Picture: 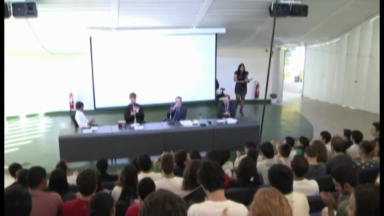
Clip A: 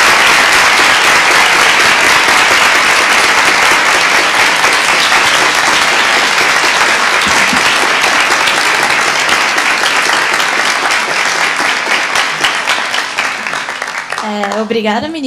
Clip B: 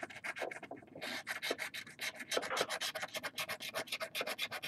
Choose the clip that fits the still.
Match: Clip A